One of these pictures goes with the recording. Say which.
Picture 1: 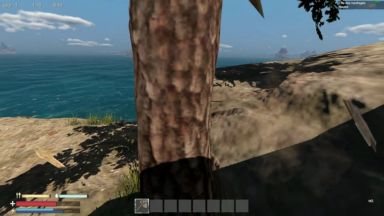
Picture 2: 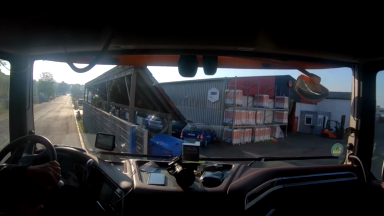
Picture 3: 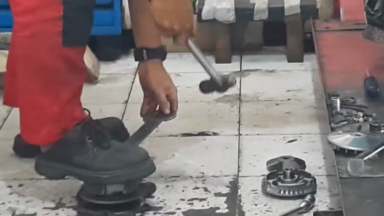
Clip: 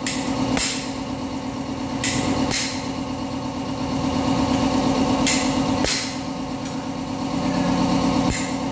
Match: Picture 3